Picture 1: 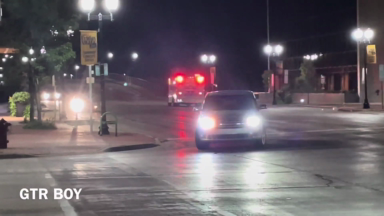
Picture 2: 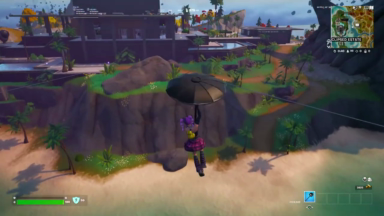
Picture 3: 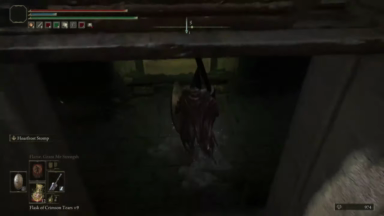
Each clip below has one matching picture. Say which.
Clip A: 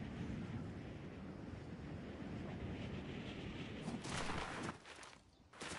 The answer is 2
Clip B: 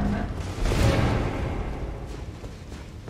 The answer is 3